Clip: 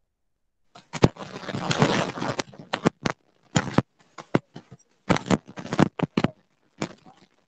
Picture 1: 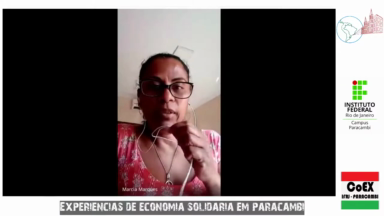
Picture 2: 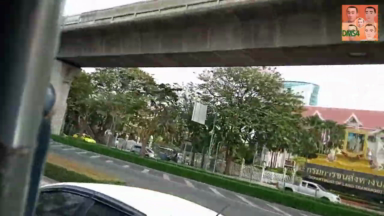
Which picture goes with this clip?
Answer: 1